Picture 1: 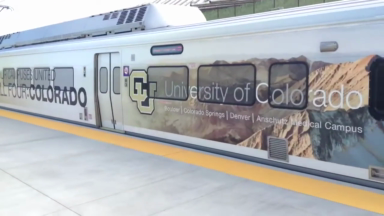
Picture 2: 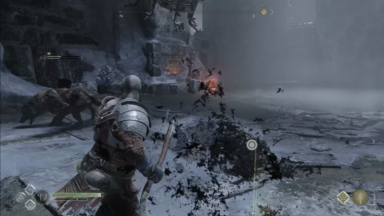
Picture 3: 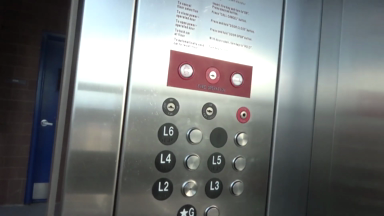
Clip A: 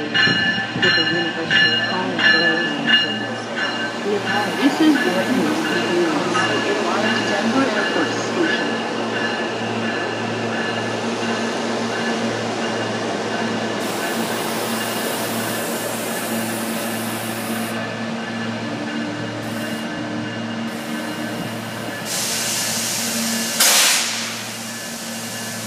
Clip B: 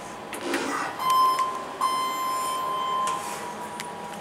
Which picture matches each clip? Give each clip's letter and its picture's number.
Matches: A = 1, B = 3